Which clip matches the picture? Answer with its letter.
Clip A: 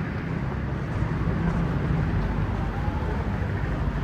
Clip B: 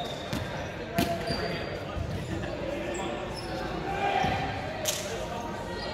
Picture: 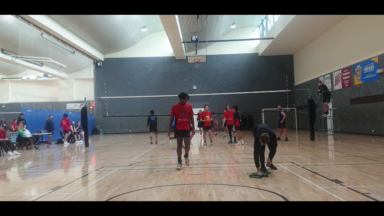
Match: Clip B